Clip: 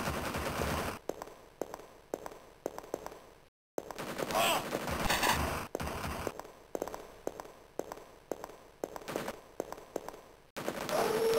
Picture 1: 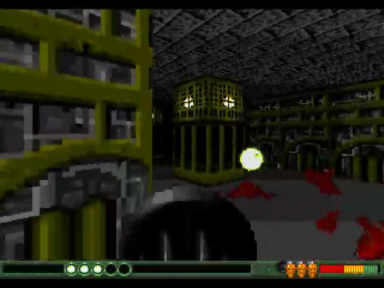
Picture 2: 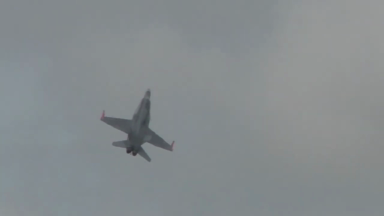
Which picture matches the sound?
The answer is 1